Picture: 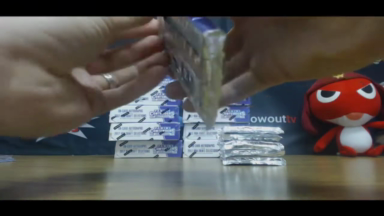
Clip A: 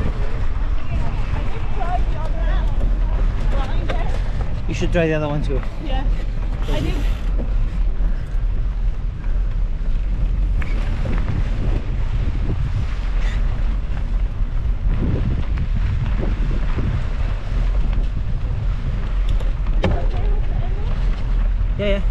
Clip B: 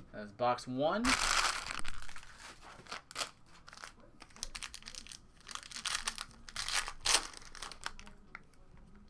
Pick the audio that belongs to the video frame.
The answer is B